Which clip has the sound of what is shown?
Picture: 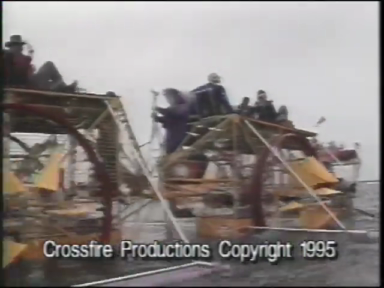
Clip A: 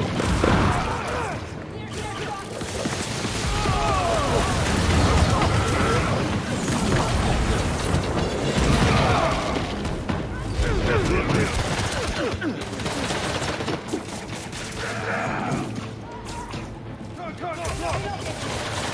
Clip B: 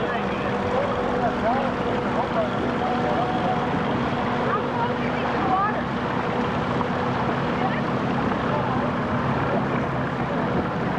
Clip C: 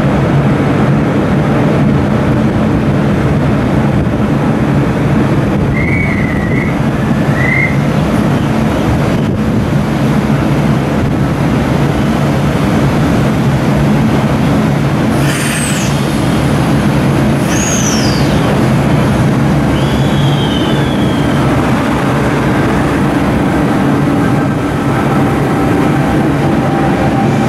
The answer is B